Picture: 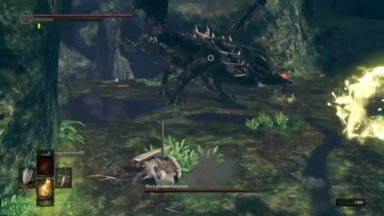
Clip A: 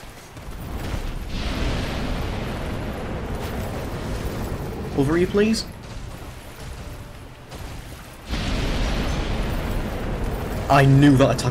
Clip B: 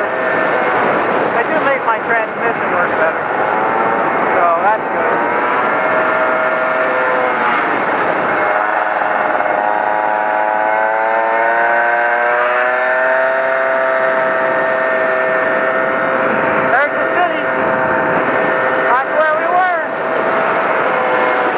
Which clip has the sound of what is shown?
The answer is A